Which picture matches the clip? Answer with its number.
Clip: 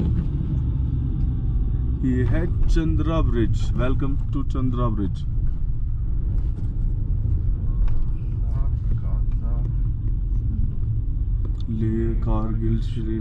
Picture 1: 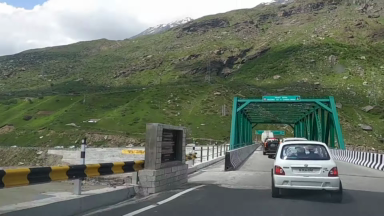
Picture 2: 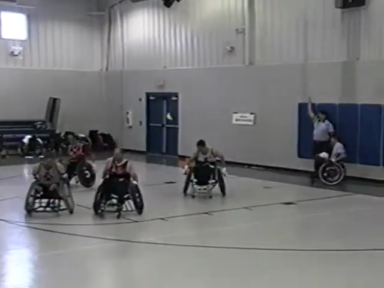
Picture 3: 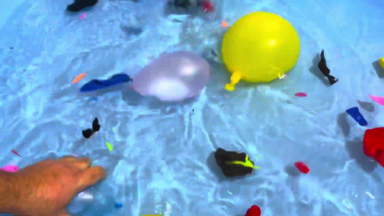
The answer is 1